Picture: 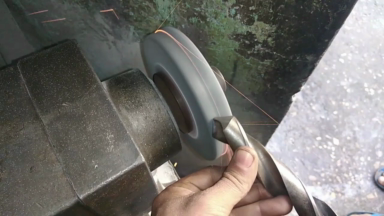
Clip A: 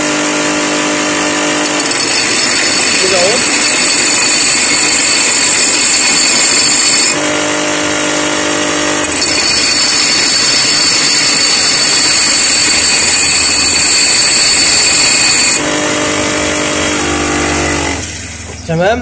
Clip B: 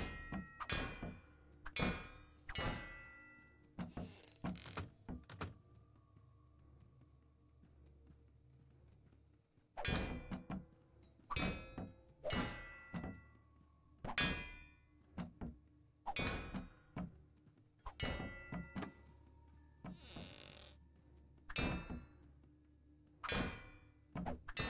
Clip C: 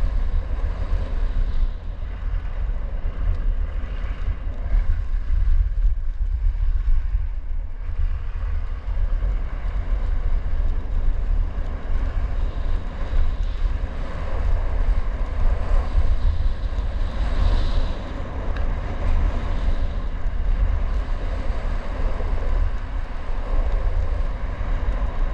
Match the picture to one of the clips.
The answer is A